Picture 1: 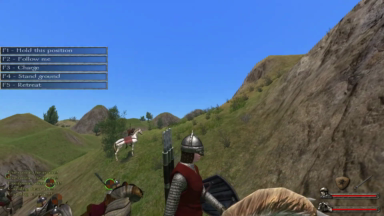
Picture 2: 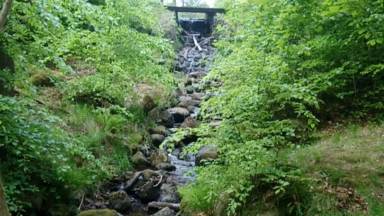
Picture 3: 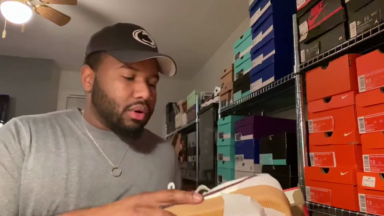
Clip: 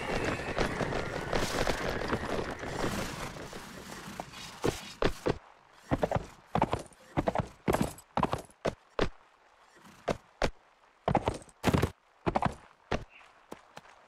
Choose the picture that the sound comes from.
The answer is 1